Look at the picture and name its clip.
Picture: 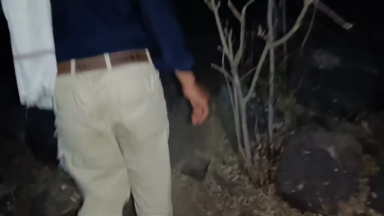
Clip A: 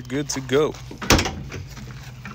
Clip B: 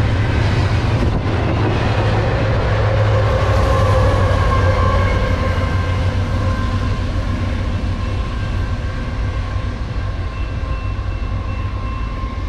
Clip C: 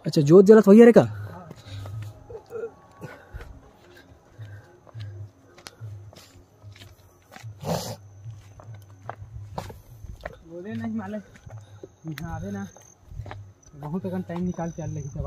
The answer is C